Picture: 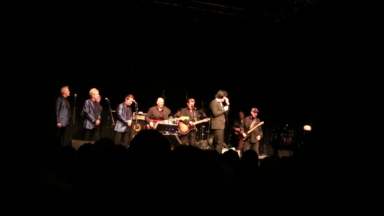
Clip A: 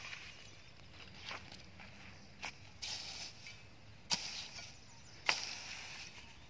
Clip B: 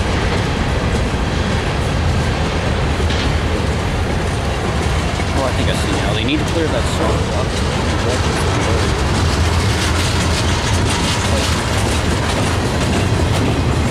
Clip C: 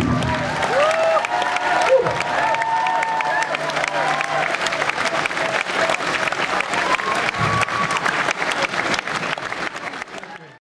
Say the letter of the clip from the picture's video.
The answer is C